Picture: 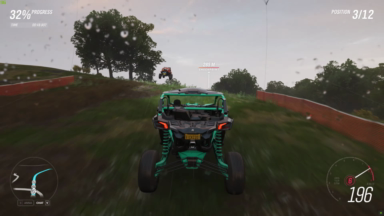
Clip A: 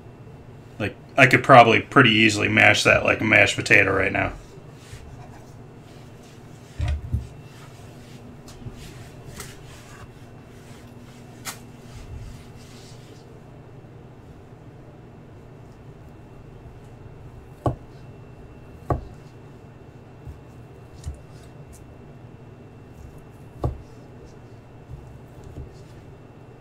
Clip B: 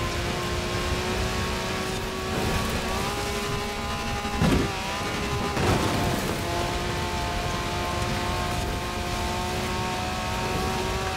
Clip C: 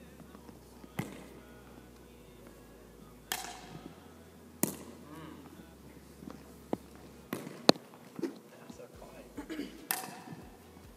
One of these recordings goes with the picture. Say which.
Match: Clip B